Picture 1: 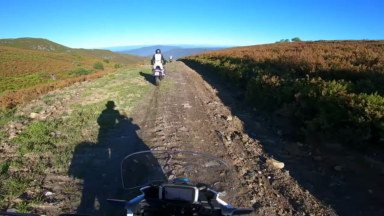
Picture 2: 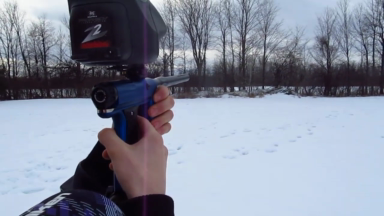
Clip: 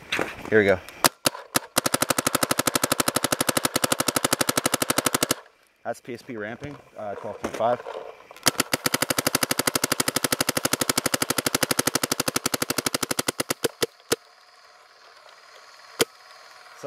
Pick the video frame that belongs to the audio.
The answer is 2